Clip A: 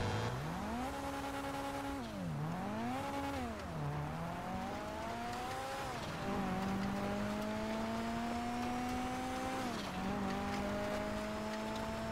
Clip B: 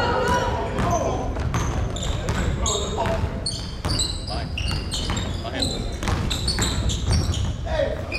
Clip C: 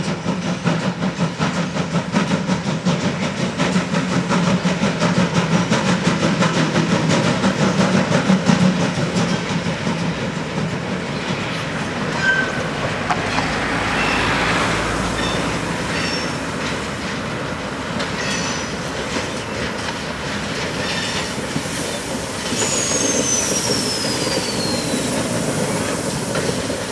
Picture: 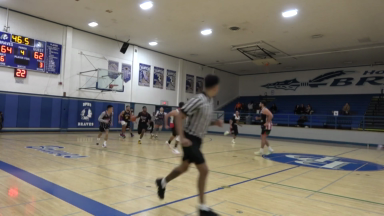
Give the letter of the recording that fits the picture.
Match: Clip B